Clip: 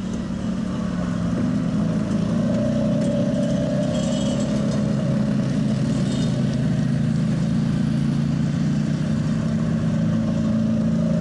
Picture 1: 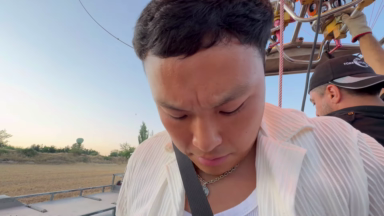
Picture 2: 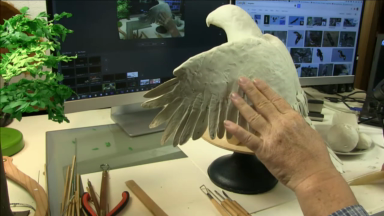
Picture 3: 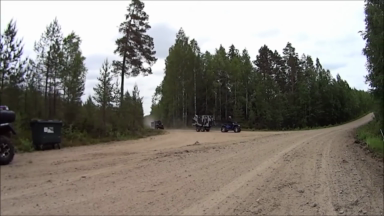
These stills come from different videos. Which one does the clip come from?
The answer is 3